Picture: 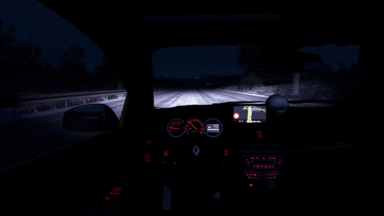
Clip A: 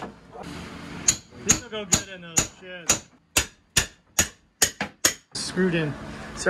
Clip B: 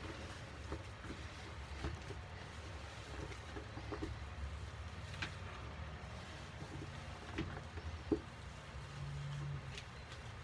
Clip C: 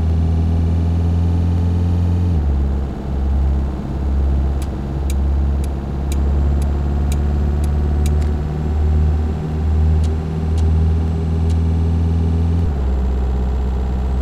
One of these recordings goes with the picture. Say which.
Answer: C